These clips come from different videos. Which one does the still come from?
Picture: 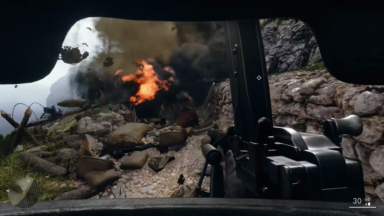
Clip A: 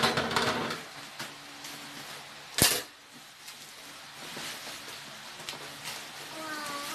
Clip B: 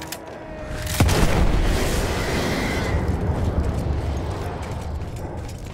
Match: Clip B